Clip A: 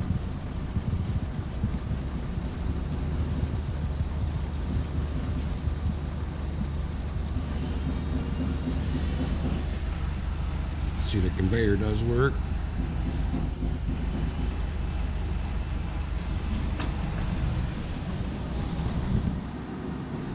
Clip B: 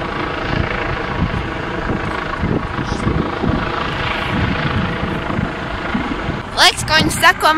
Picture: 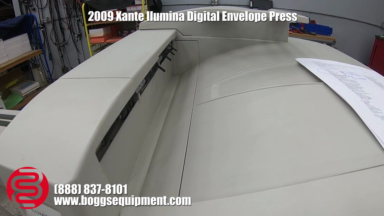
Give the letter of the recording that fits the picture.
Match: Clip A